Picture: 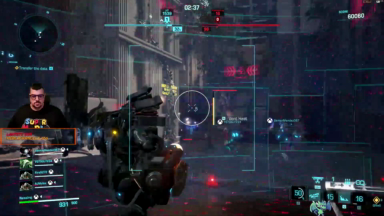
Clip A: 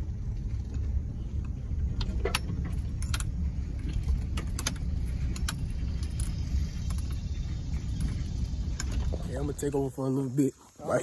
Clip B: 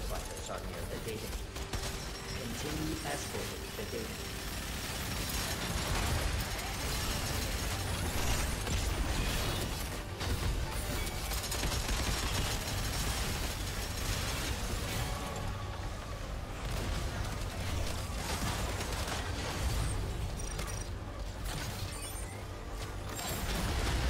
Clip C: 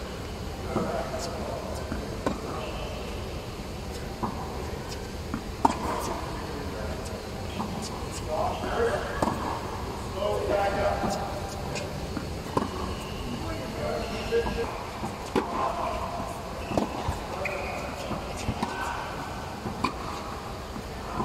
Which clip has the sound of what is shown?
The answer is B